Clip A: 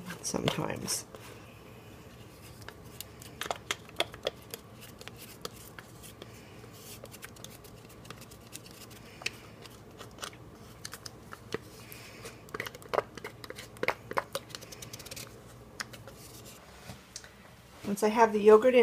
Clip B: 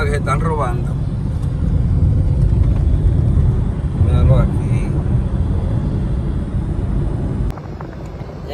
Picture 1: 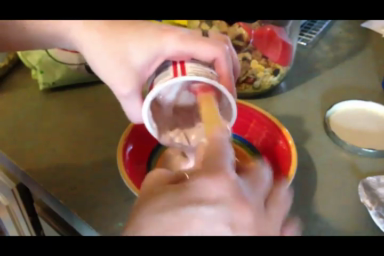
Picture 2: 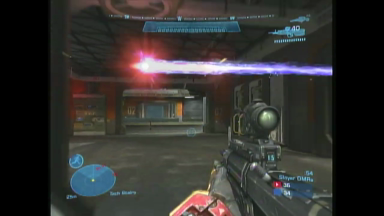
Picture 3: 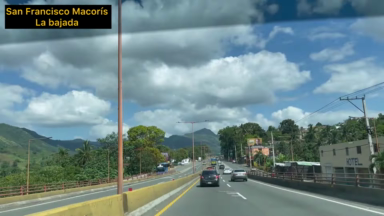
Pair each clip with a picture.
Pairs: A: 1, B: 3